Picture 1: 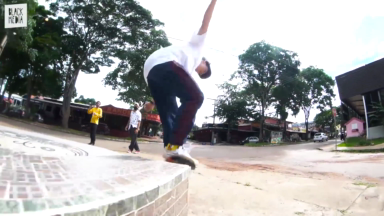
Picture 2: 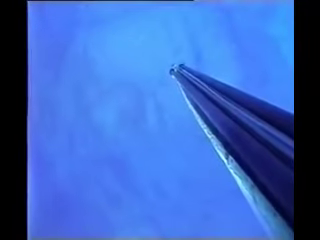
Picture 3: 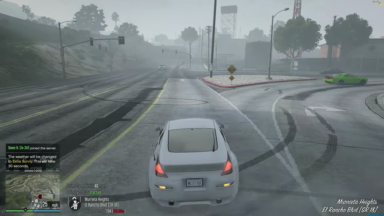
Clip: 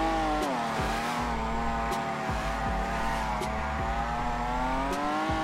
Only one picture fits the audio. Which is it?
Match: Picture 3